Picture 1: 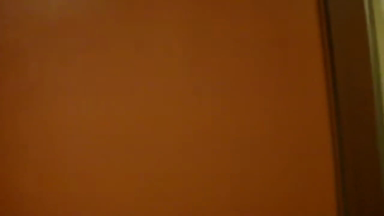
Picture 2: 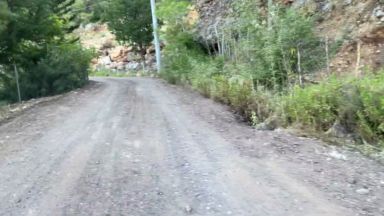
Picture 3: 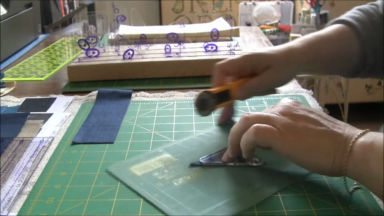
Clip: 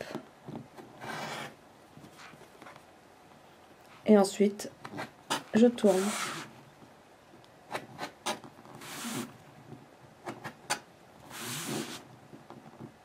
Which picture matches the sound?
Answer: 3